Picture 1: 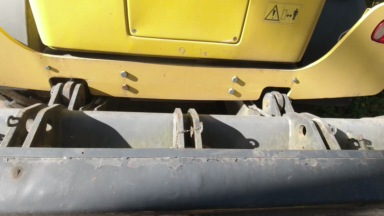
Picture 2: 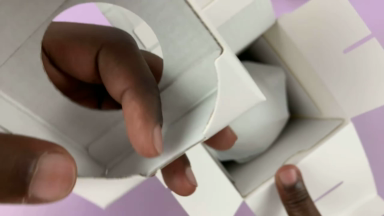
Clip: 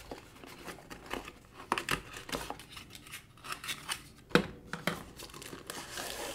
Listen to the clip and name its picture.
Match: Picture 2